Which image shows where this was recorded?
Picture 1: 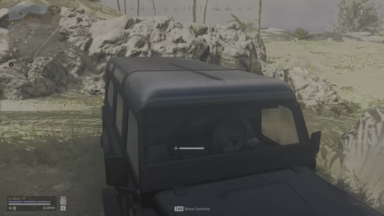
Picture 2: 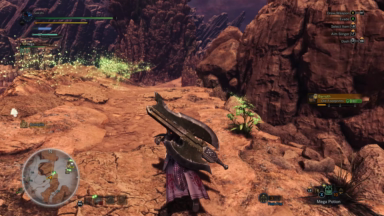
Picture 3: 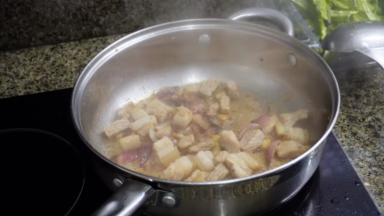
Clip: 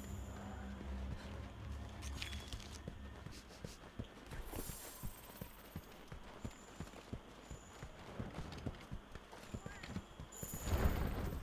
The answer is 2